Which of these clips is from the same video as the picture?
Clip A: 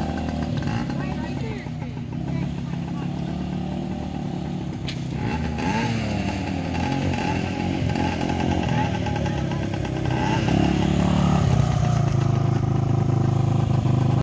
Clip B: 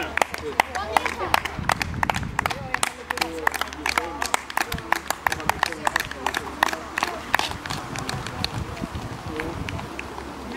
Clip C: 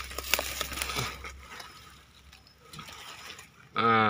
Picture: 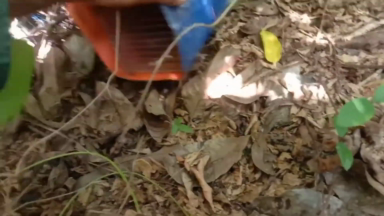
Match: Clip C